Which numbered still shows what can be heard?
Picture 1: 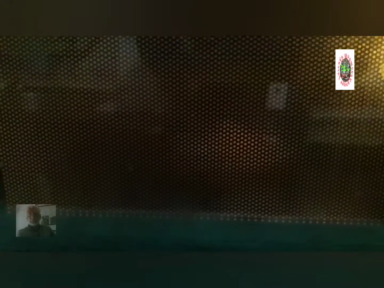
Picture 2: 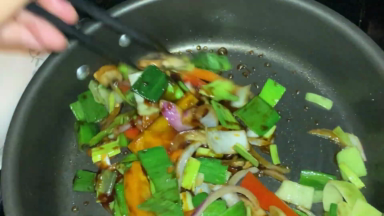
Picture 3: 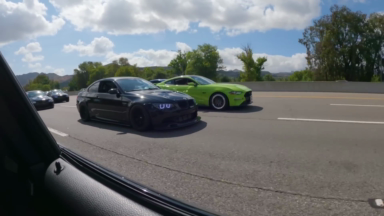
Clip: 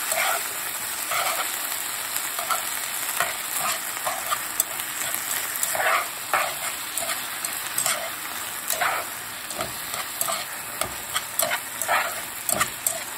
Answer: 2